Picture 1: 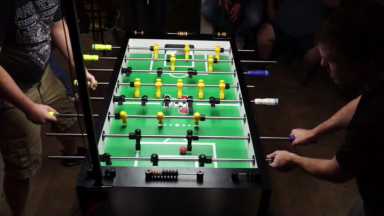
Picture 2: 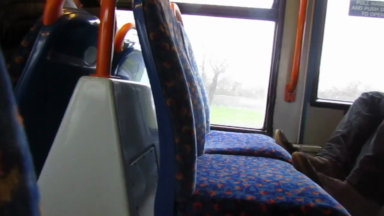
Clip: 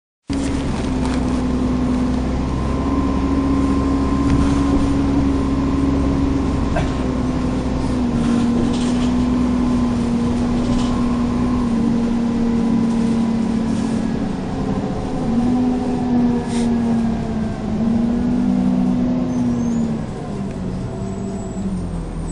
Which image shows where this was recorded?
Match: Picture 2